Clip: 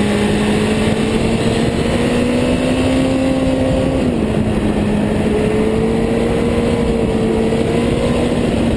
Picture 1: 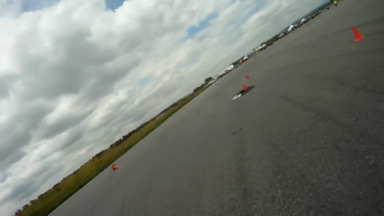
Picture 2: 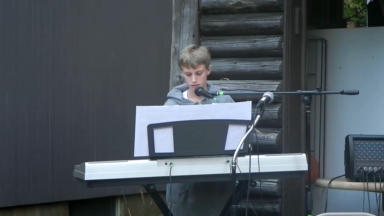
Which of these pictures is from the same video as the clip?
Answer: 1